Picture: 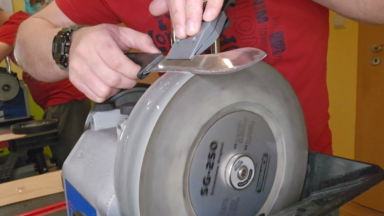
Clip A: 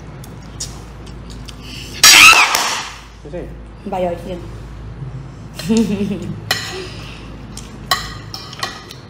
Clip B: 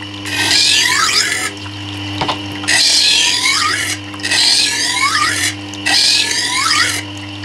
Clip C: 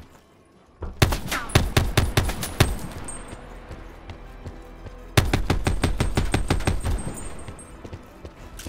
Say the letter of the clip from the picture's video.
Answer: B